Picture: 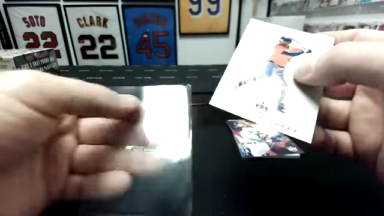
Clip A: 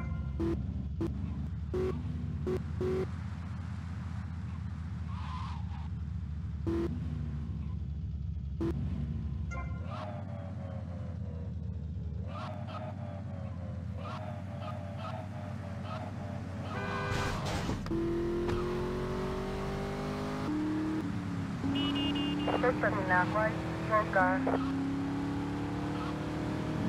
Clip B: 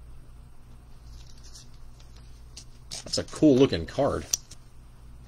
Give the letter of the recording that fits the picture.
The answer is B